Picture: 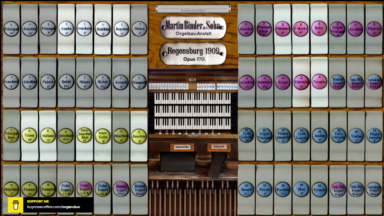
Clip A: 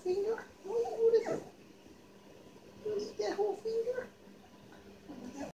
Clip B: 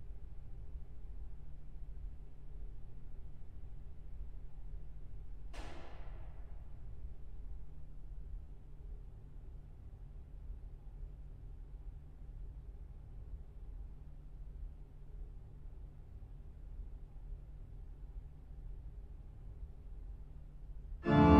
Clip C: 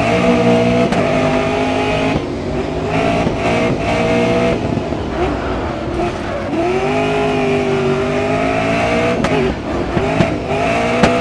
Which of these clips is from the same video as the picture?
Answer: B